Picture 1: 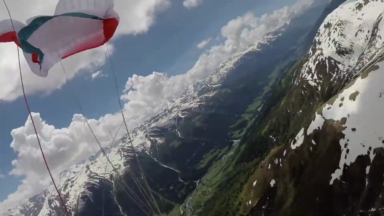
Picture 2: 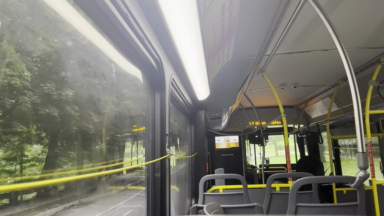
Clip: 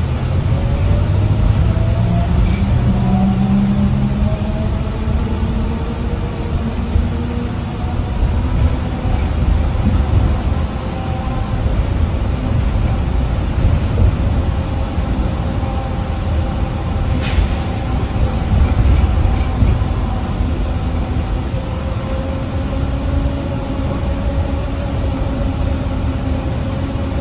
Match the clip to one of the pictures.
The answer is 2